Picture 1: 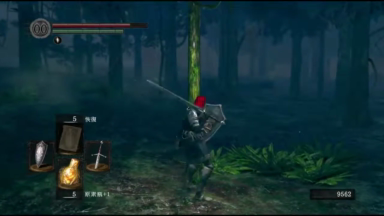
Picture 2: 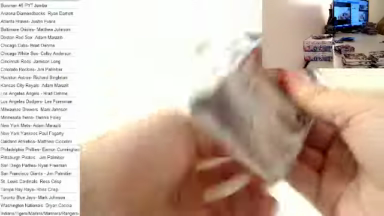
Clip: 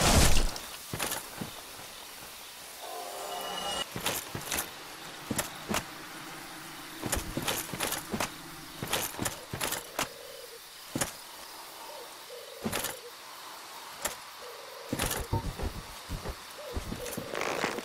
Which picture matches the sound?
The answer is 1